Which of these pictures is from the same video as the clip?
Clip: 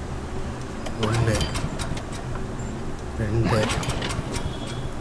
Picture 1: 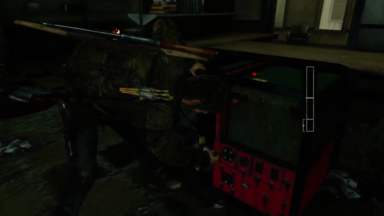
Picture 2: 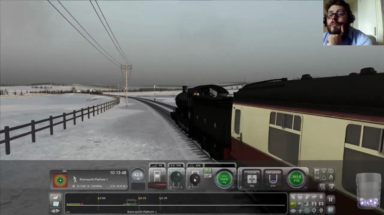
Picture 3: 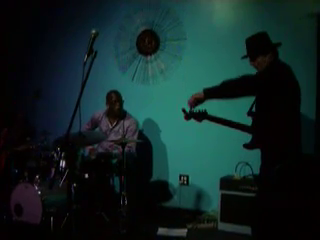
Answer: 1